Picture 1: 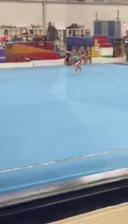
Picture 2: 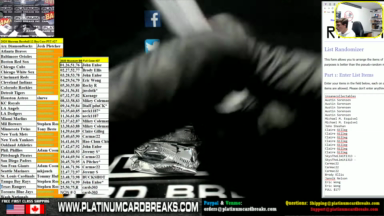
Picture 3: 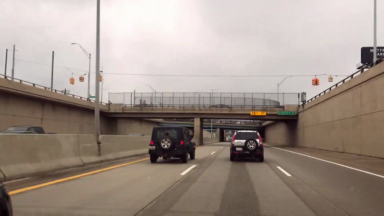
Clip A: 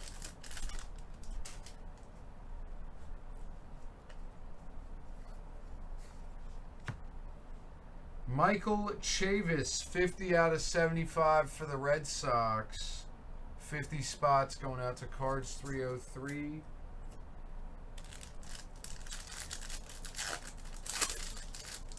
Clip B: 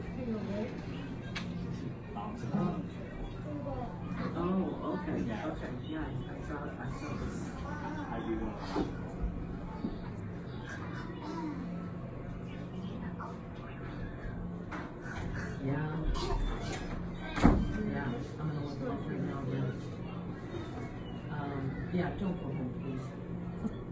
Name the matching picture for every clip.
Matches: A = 2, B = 1